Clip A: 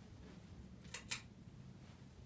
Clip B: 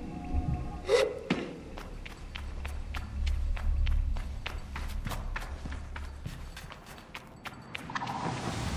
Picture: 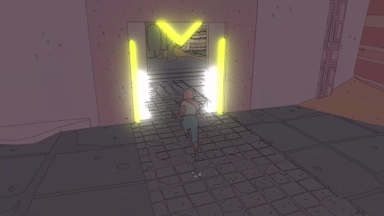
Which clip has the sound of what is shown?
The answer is B